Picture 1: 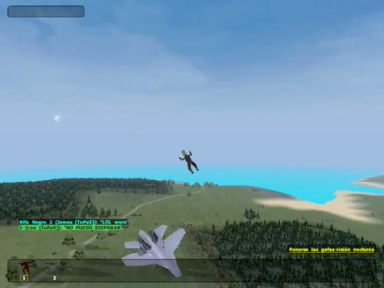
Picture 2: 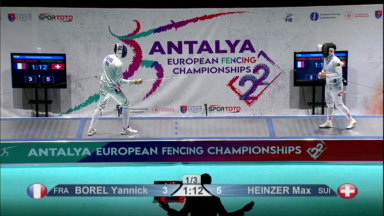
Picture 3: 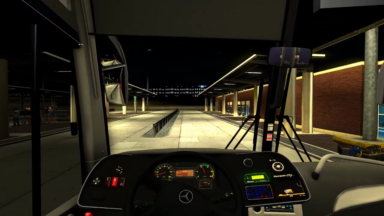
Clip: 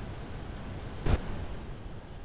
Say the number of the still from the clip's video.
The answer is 1